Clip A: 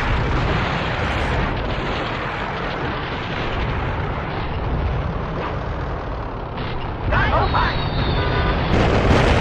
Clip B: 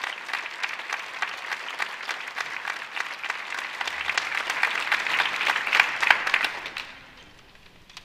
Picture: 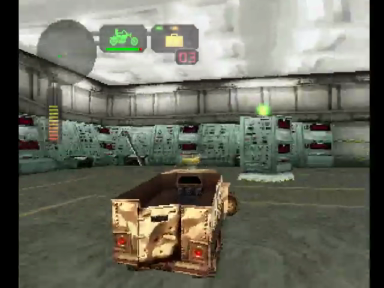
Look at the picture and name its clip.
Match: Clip A